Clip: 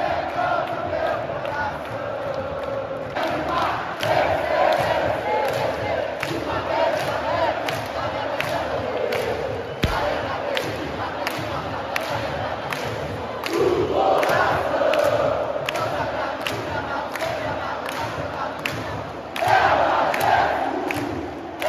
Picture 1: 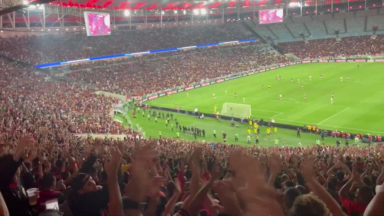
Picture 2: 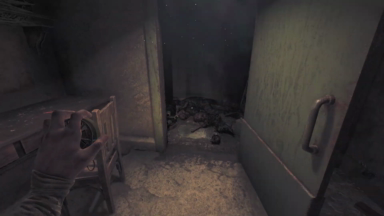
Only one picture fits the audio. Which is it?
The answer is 1